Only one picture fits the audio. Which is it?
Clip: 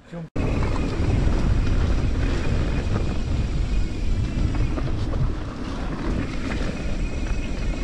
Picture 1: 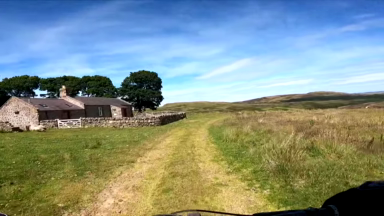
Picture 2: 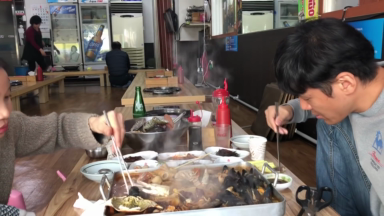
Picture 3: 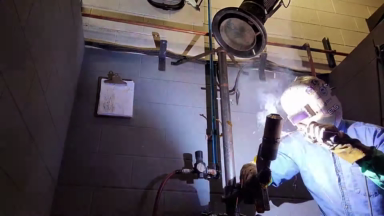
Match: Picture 1